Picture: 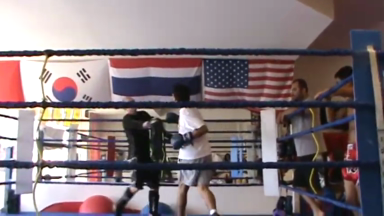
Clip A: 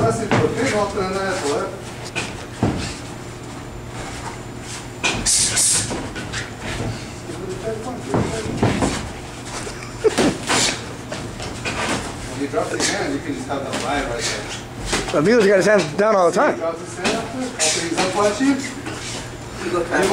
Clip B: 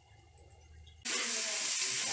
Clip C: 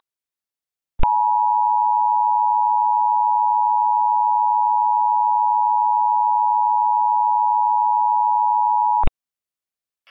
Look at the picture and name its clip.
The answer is A